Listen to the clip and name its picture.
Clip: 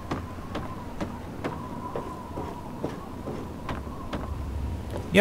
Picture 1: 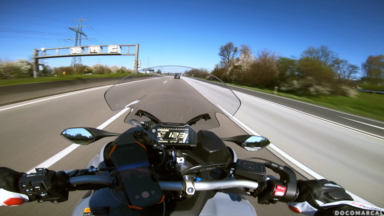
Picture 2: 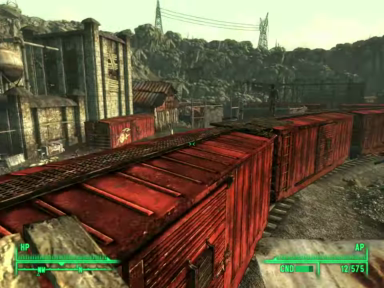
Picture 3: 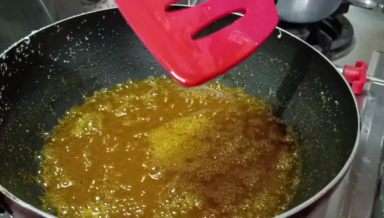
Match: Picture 2